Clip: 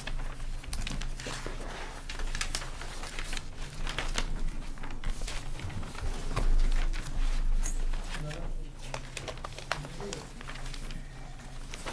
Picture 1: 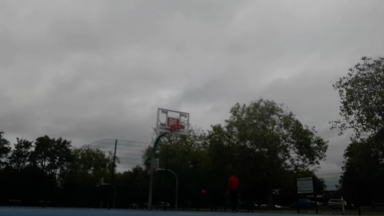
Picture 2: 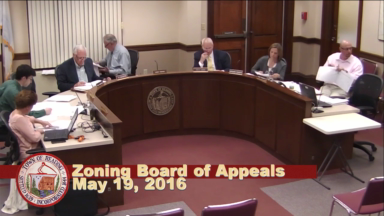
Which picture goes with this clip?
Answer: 2